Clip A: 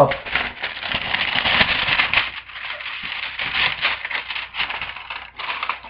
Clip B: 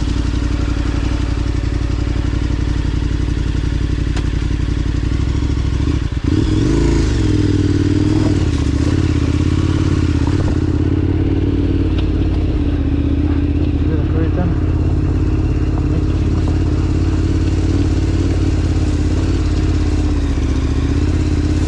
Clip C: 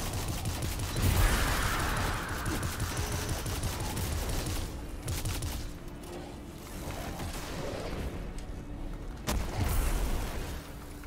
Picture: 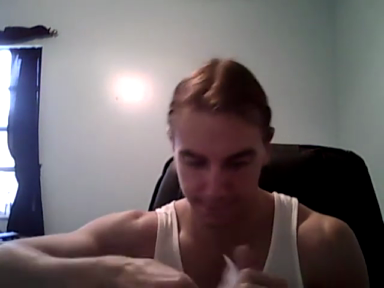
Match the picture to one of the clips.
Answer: A